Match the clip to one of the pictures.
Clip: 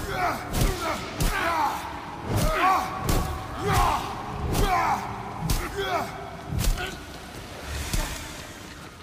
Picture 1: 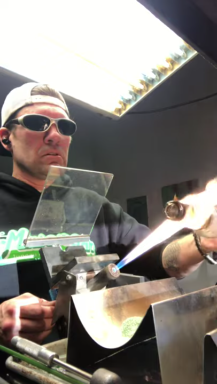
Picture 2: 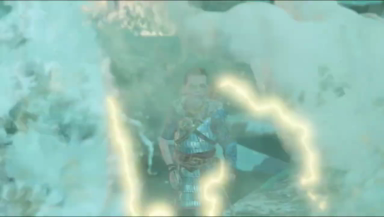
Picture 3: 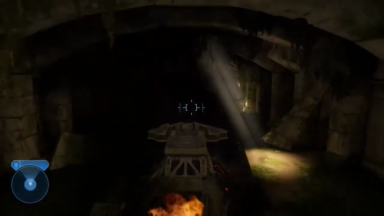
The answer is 2